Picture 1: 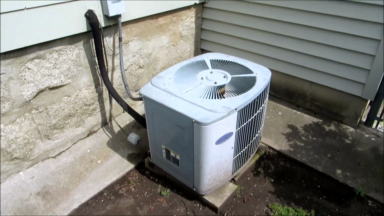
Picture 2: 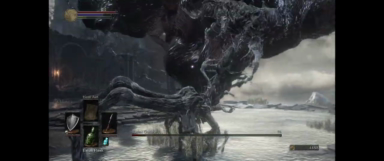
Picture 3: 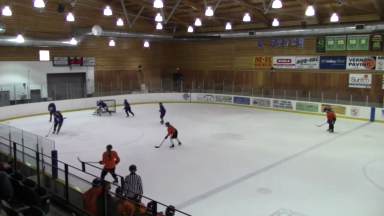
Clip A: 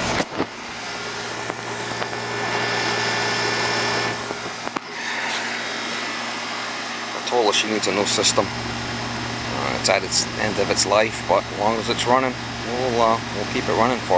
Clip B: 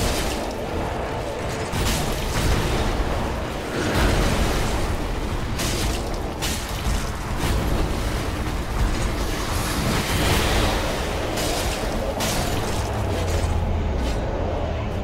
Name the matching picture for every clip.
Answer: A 1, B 2